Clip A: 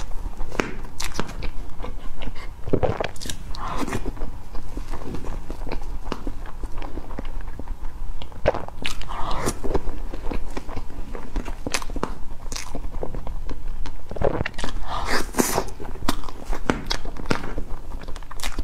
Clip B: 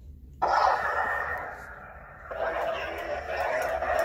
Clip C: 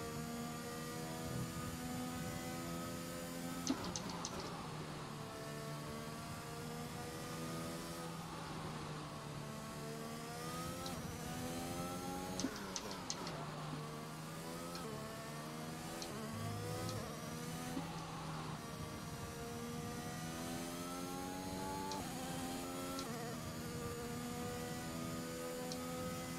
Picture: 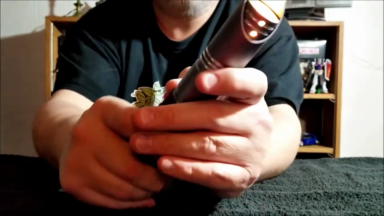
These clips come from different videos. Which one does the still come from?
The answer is B